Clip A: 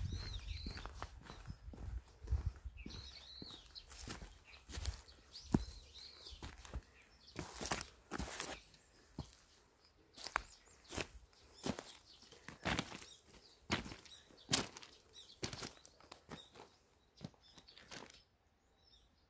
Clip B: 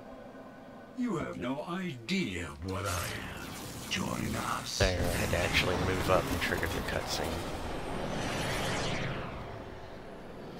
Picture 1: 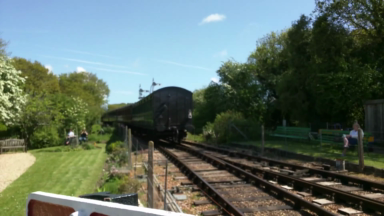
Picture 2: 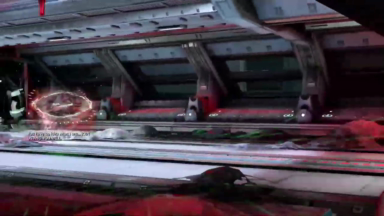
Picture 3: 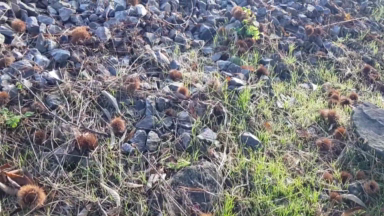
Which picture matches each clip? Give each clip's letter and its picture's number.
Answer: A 3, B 2